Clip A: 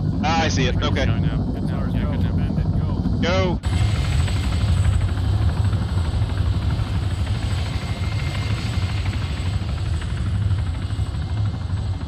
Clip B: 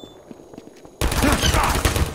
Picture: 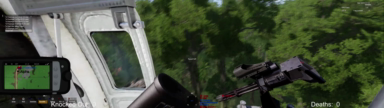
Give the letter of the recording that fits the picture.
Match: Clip A